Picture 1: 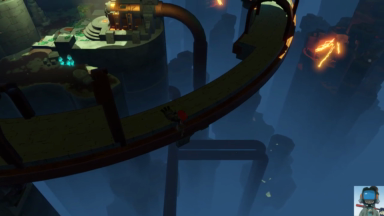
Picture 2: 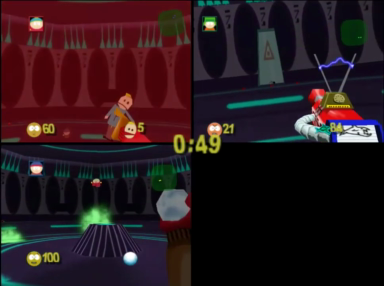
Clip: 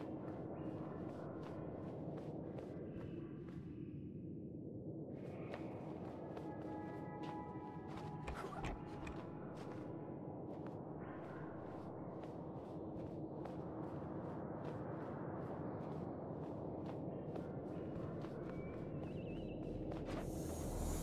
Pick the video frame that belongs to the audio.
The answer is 1